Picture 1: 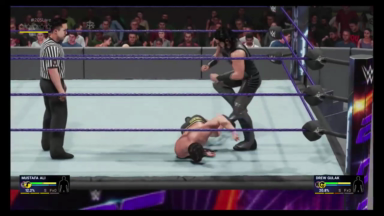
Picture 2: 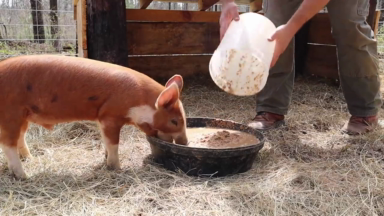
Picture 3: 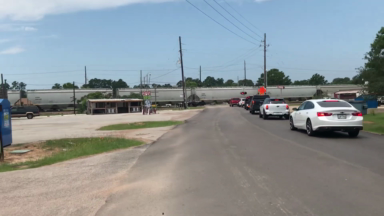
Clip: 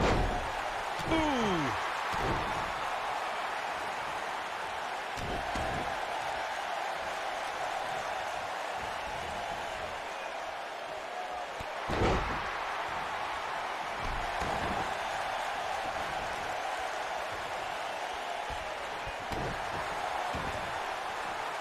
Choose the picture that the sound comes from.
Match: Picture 1